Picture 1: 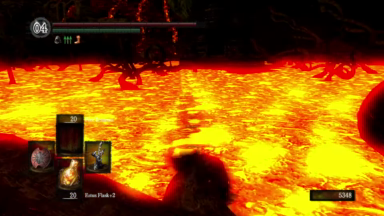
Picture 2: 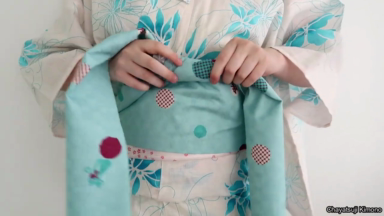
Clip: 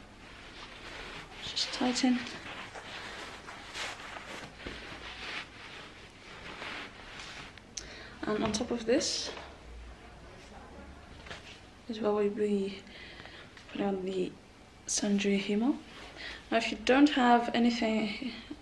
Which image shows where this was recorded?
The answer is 2